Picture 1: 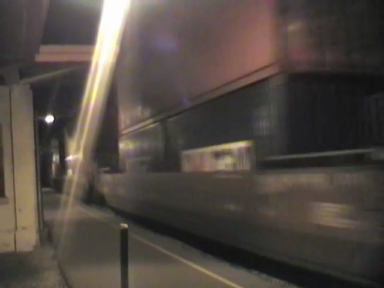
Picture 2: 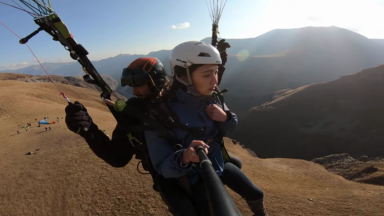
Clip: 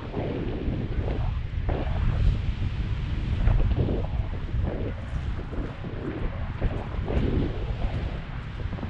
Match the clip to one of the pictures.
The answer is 2